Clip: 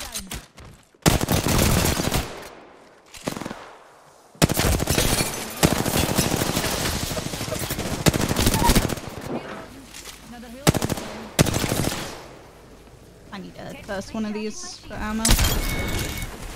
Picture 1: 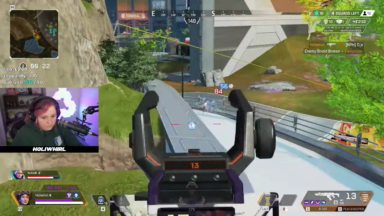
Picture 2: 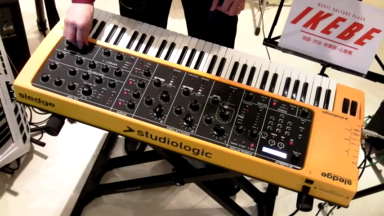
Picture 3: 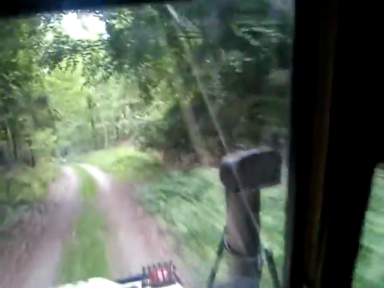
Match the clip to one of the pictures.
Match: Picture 1